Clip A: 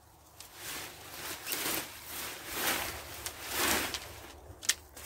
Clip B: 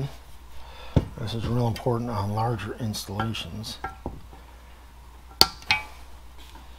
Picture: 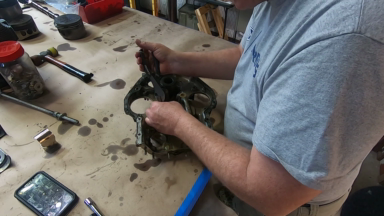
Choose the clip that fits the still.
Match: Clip B